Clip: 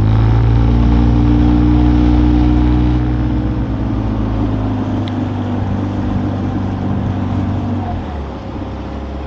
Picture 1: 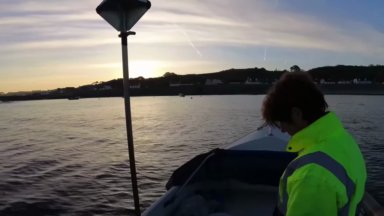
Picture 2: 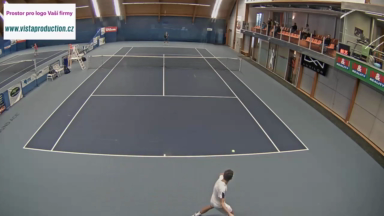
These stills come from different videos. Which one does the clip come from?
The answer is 1